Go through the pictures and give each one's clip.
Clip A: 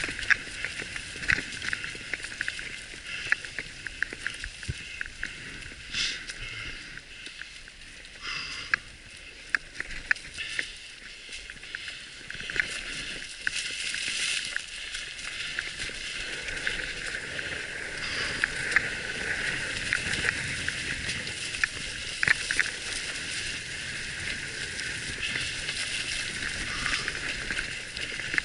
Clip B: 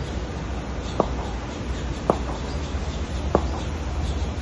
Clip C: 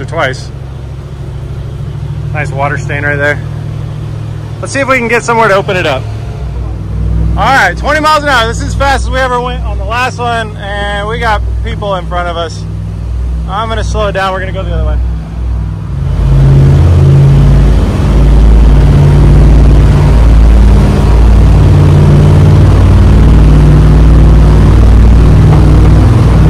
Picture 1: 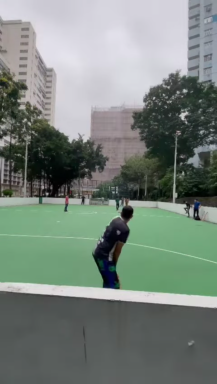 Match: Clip B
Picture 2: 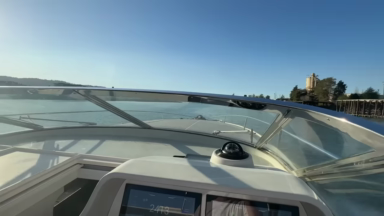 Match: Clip C